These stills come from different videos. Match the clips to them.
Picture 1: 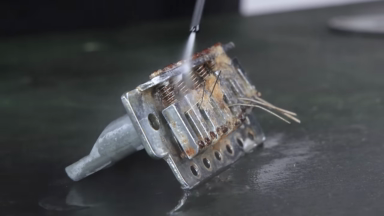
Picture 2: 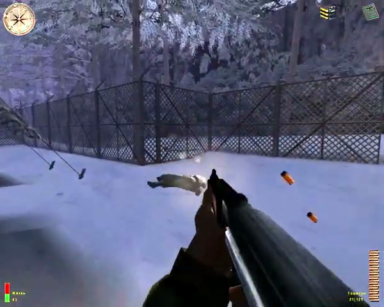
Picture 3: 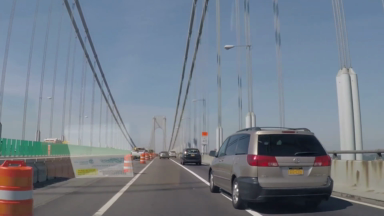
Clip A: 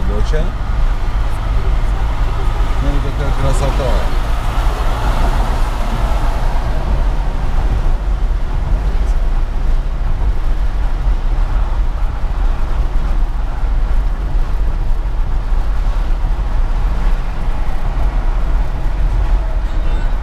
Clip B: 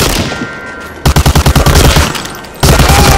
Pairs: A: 3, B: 2